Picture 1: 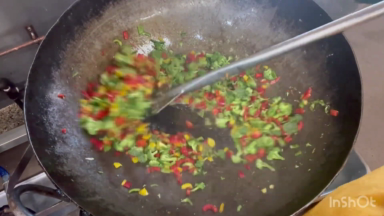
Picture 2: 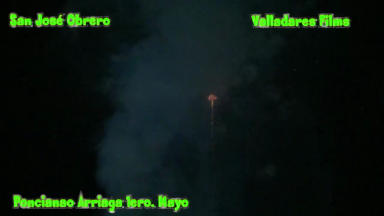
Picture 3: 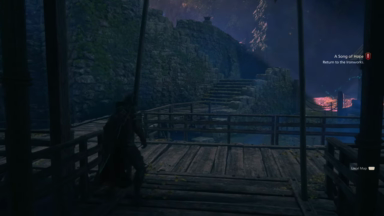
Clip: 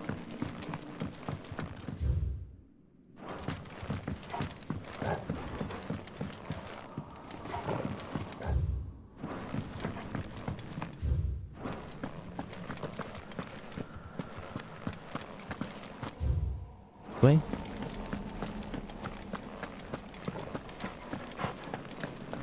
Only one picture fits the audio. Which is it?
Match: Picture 3